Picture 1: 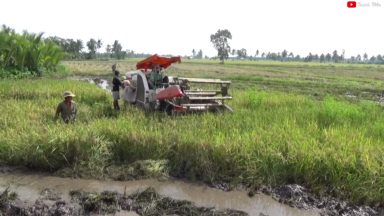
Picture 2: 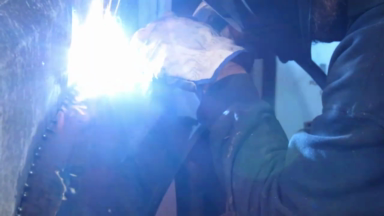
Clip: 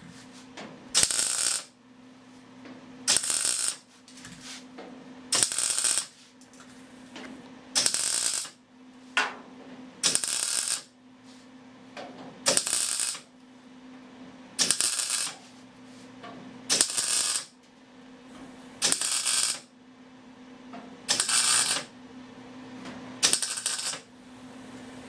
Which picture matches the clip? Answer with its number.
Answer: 2